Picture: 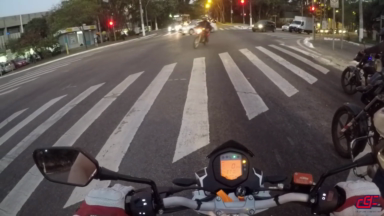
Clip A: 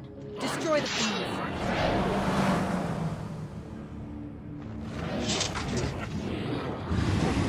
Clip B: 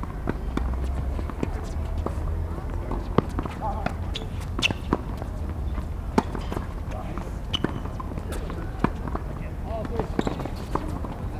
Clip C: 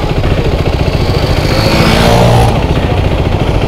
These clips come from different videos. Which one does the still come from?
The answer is C